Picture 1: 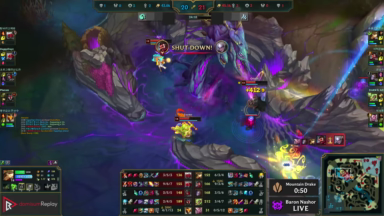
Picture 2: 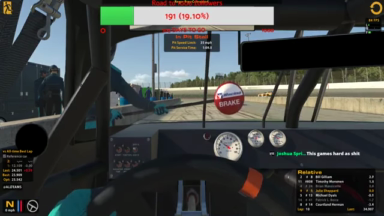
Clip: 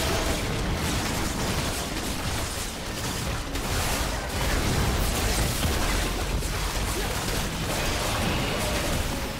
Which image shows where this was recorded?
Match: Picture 1